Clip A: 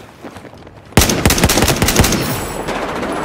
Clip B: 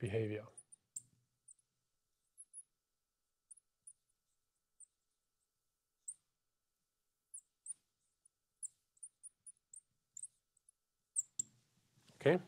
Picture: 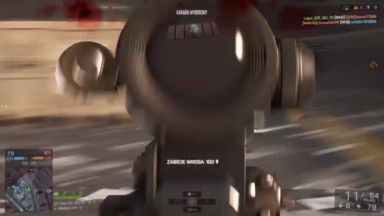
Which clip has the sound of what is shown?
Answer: A